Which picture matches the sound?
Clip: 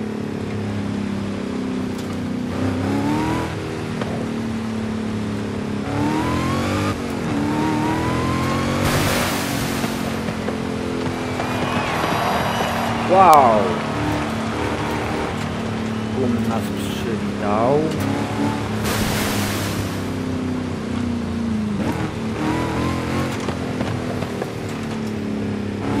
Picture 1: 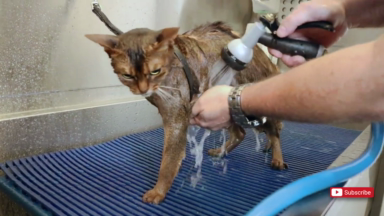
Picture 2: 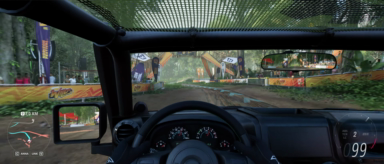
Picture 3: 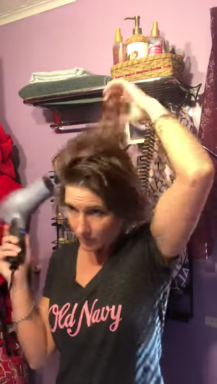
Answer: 2